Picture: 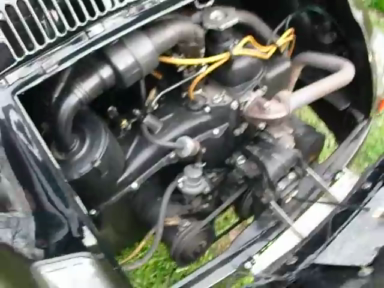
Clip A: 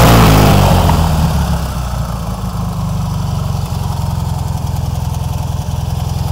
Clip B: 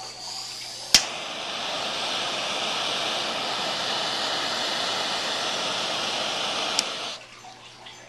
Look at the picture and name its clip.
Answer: A